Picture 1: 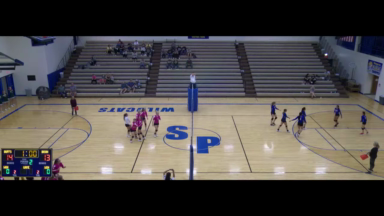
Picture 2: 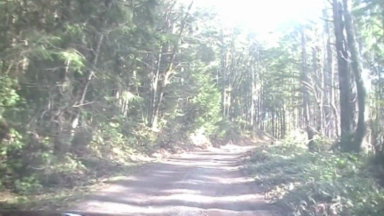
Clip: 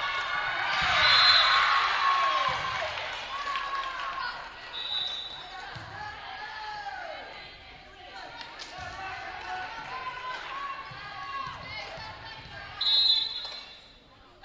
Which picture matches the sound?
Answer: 1